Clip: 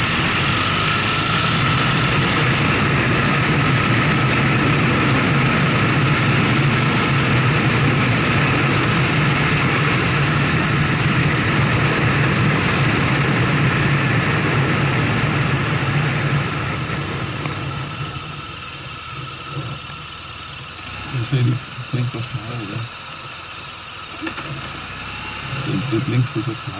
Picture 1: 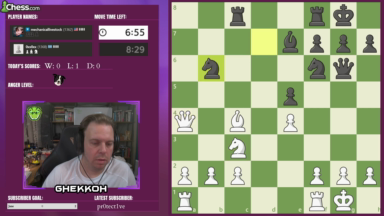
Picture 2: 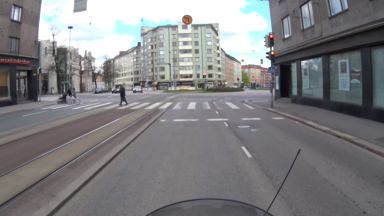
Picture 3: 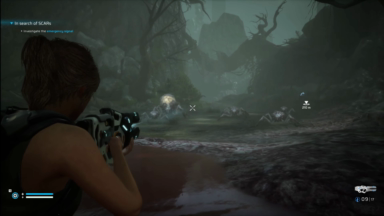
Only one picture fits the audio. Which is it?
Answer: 2